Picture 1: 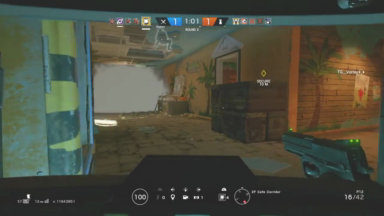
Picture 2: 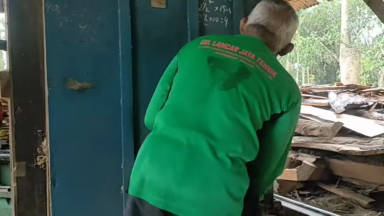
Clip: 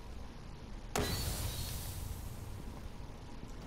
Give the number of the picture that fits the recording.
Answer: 1